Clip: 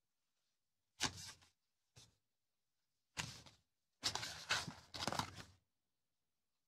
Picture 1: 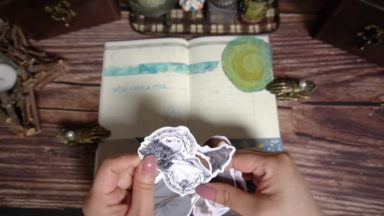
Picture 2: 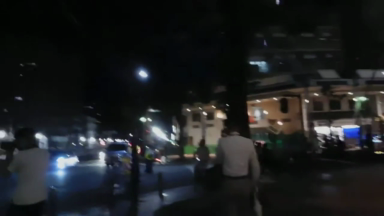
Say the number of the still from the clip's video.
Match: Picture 1